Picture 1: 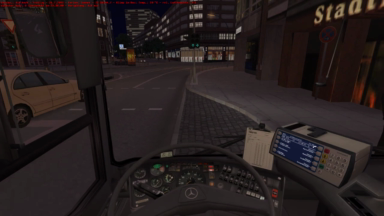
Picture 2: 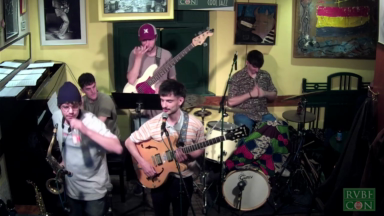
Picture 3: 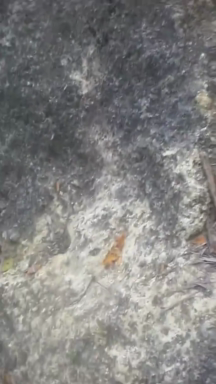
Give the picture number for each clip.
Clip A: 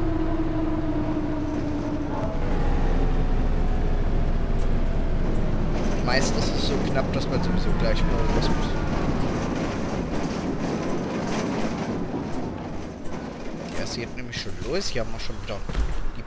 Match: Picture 1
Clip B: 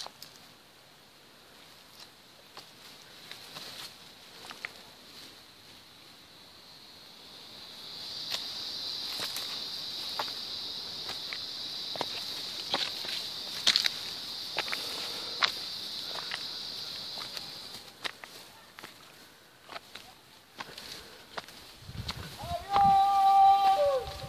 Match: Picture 3